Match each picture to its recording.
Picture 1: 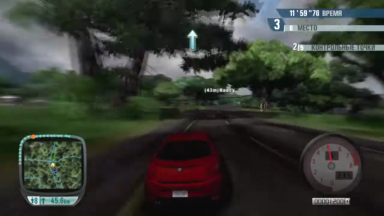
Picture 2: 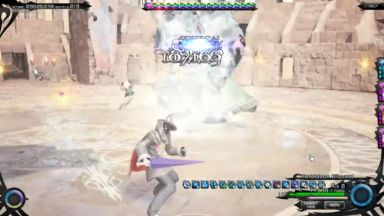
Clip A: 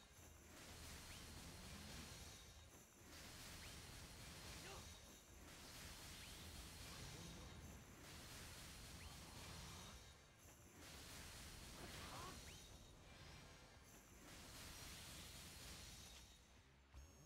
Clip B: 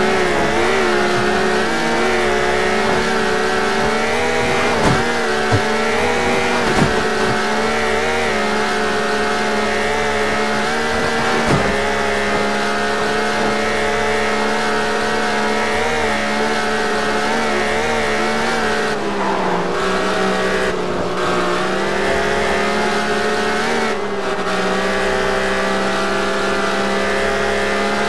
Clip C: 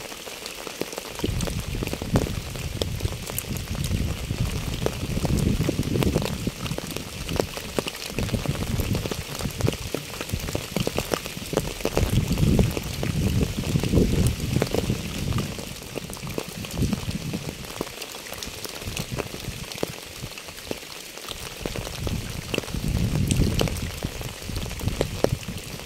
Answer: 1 B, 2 A